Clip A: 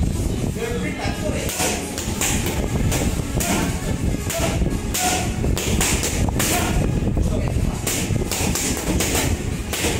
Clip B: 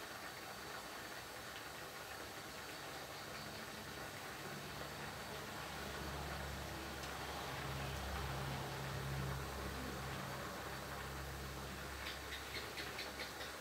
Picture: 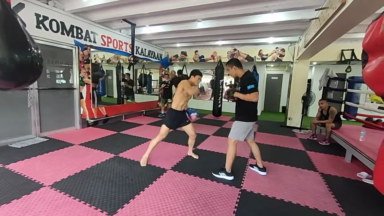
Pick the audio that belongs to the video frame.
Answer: A